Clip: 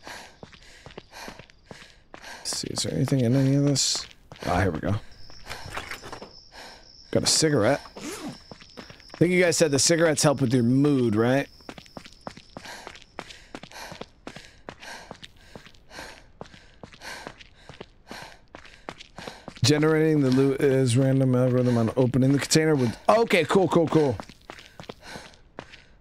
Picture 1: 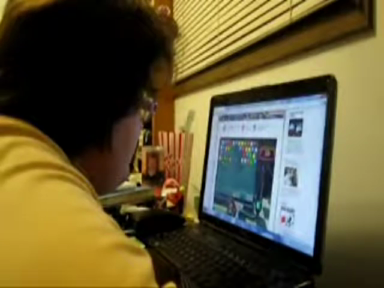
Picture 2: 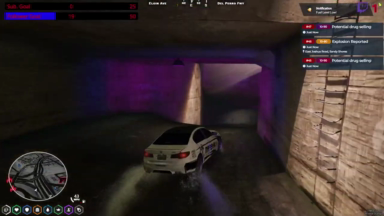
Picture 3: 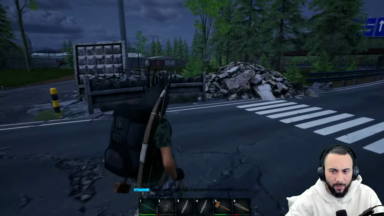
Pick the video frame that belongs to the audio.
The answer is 3